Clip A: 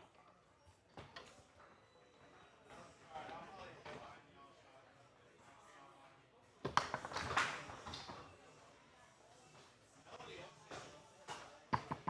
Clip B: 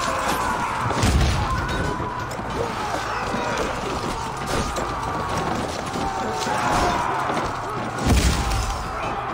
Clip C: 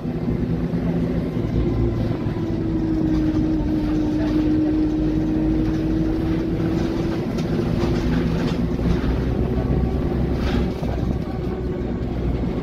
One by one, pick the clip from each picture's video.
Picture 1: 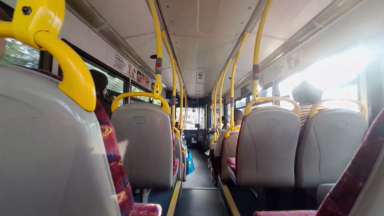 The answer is C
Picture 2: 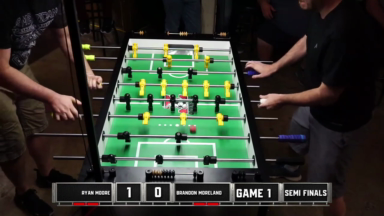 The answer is A